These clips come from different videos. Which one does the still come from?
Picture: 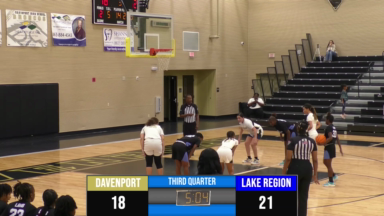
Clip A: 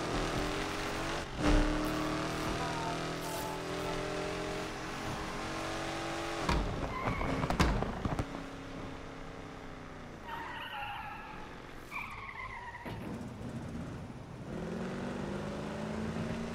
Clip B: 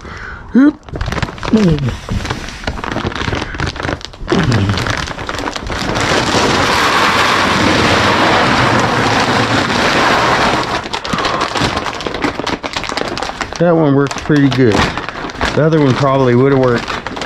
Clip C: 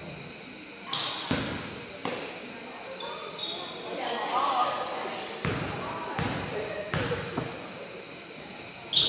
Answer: C